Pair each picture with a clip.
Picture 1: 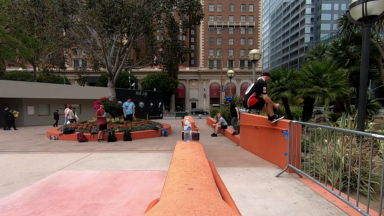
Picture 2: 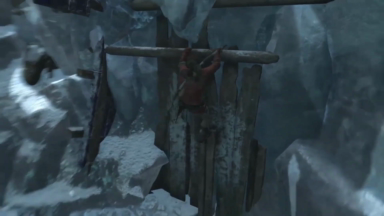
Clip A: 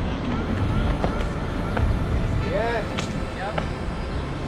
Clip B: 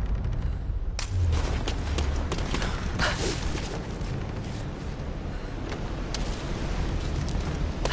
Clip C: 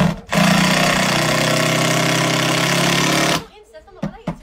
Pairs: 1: A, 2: B